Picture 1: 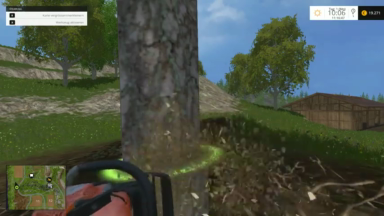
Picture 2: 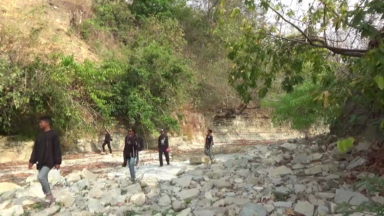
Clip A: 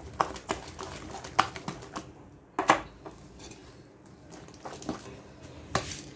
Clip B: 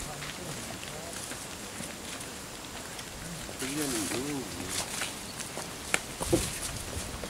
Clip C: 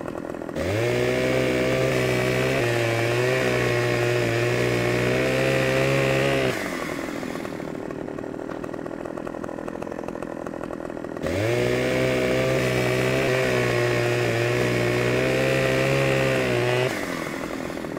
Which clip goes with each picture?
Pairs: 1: C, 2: B